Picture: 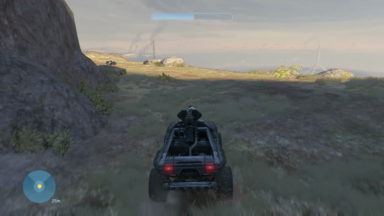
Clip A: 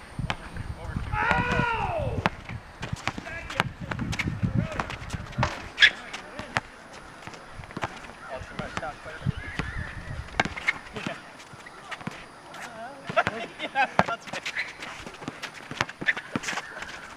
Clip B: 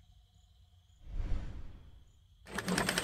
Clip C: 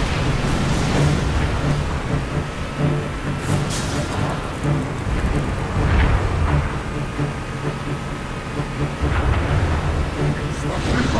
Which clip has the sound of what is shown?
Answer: C